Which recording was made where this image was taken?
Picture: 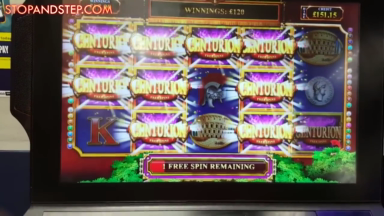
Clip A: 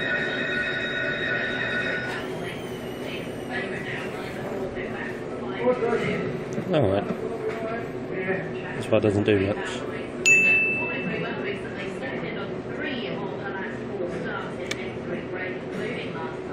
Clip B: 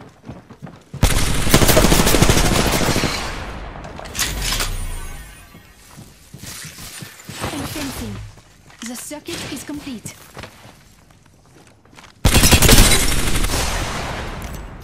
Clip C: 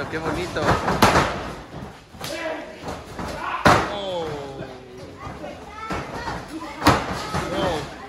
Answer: A